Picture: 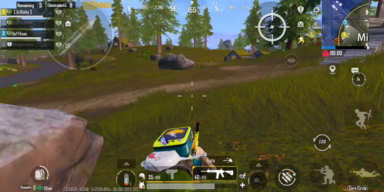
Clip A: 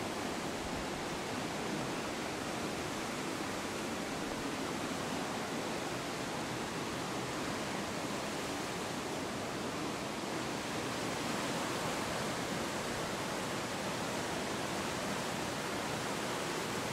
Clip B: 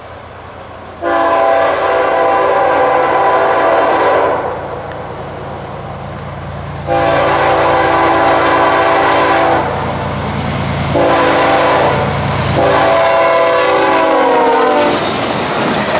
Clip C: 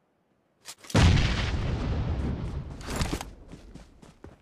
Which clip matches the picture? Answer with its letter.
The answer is C